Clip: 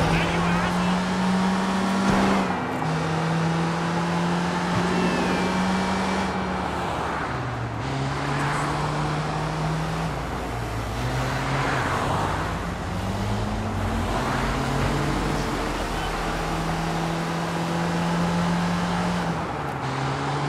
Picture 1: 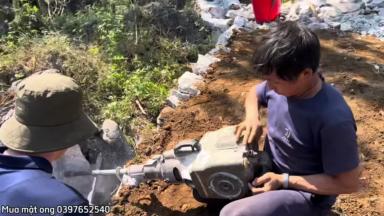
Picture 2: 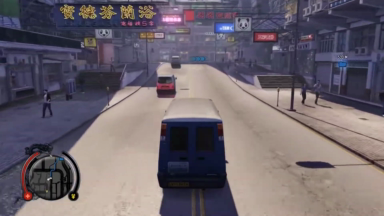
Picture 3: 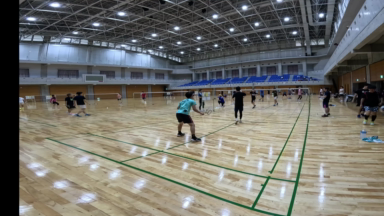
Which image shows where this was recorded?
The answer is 2